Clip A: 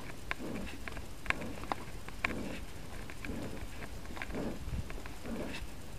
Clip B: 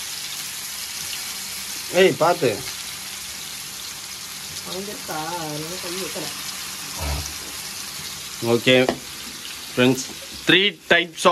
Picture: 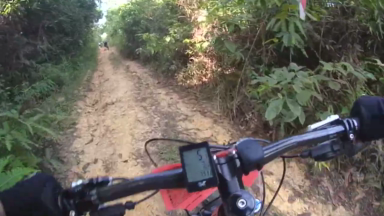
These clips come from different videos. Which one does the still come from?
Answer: A